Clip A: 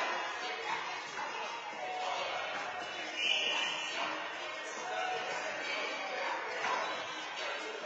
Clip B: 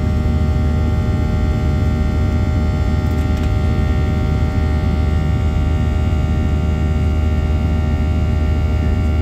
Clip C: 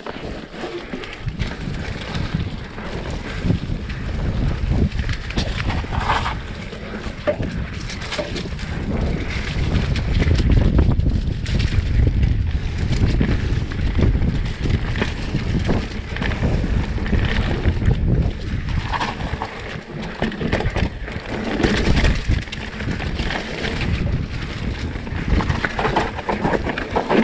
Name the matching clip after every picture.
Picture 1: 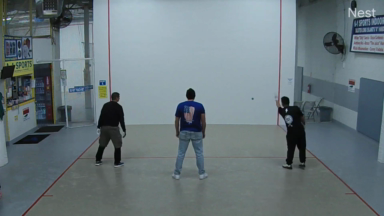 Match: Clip A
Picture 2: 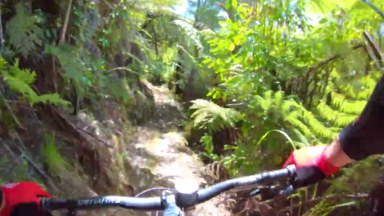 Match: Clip C